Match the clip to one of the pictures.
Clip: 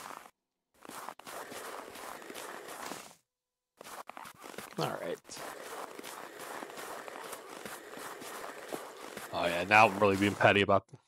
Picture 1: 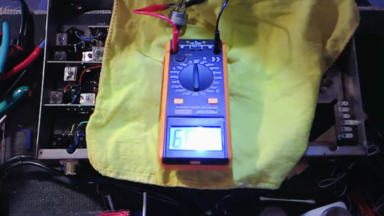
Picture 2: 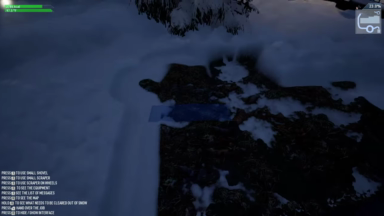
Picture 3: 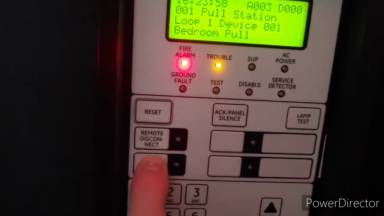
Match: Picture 2